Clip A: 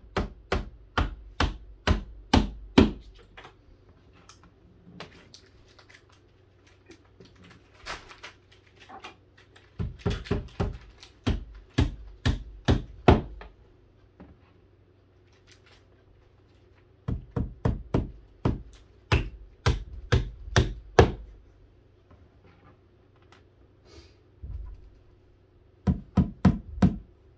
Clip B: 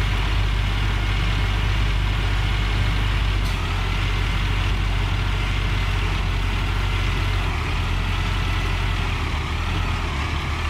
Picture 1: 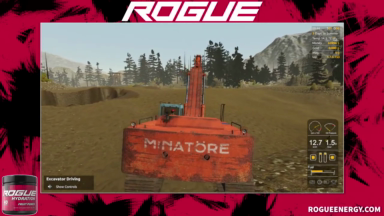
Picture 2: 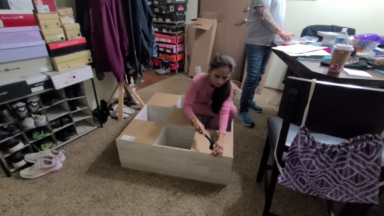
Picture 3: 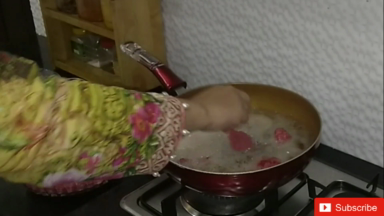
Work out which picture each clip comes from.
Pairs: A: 2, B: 1